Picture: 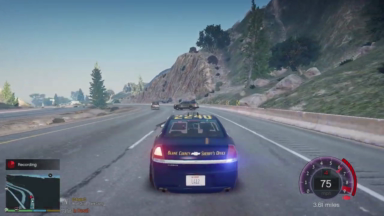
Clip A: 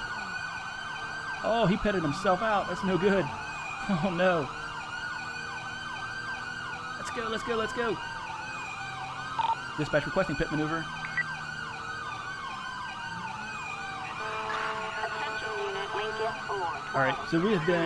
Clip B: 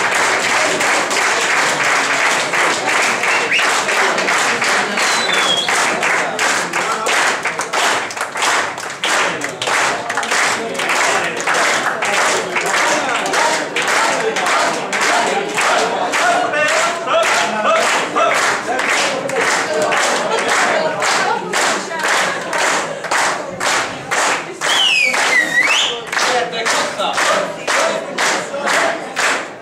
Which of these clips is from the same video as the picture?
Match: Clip A